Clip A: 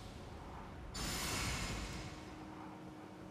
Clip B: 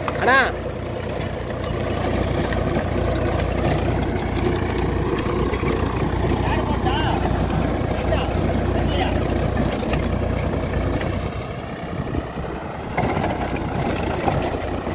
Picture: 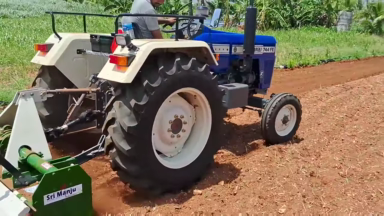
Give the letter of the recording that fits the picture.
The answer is B